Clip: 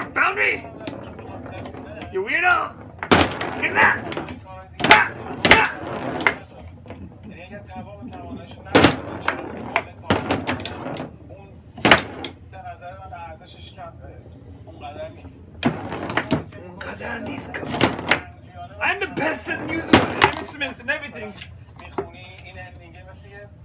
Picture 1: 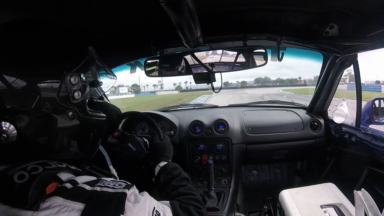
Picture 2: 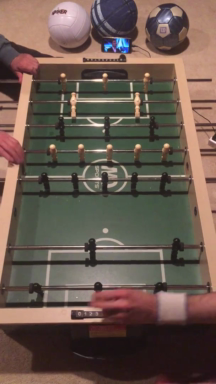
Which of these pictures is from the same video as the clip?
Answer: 2